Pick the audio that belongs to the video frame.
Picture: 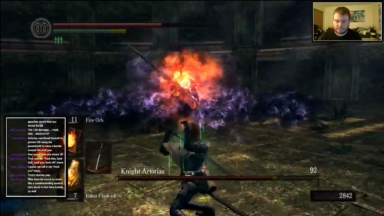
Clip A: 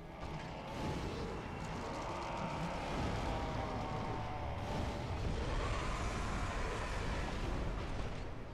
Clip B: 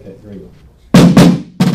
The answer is A